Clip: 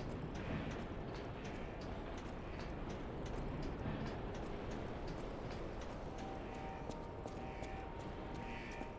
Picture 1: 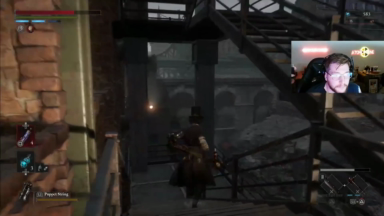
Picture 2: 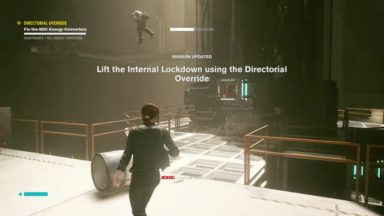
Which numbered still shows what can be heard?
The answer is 1